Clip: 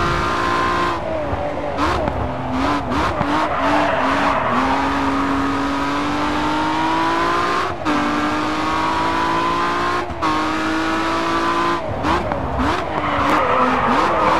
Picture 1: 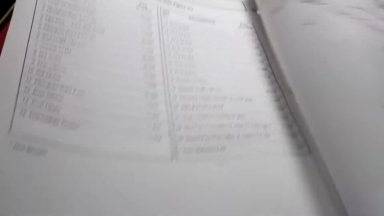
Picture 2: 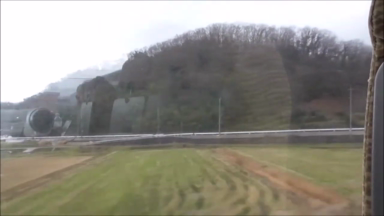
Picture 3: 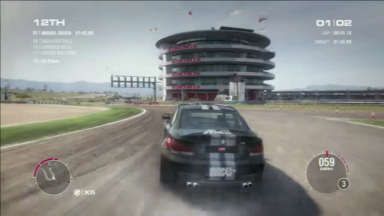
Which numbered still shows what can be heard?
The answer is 3